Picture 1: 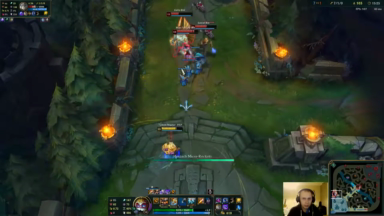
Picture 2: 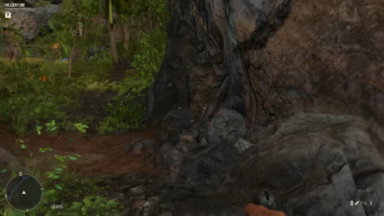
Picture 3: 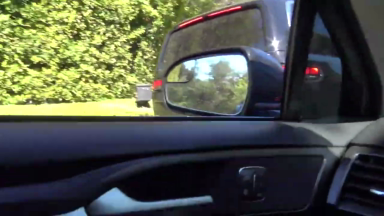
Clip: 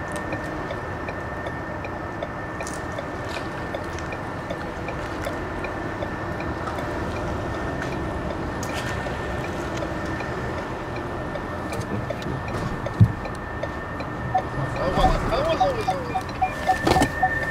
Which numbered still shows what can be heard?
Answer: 3